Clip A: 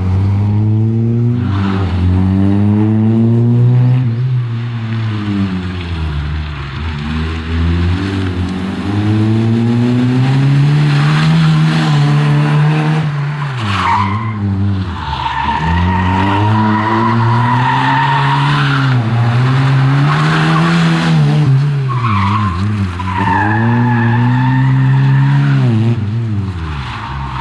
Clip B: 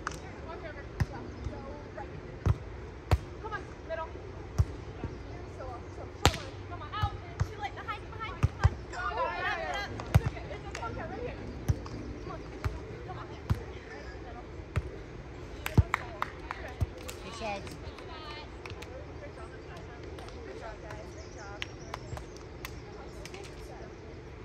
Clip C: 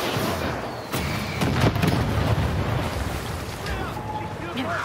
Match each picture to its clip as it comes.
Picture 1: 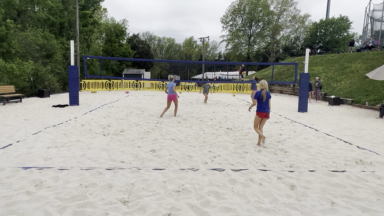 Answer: B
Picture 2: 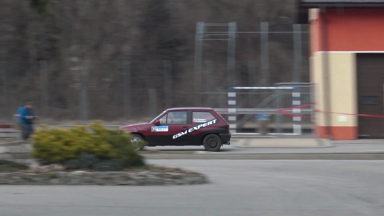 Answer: A